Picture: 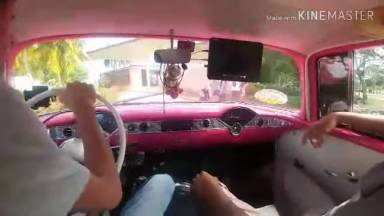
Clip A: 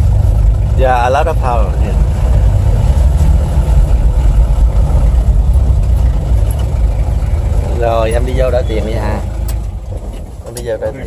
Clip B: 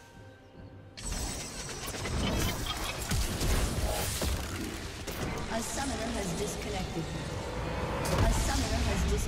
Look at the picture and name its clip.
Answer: A